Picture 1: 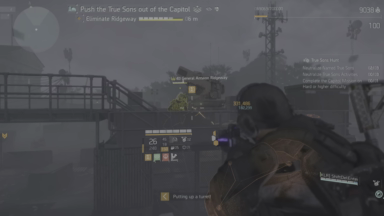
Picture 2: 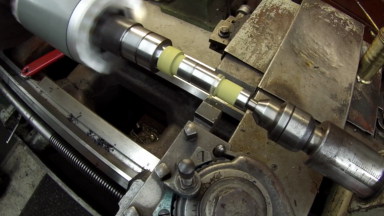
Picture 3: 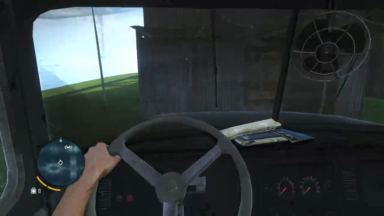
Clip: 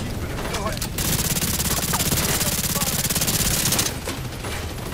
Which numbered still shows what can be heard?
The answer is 1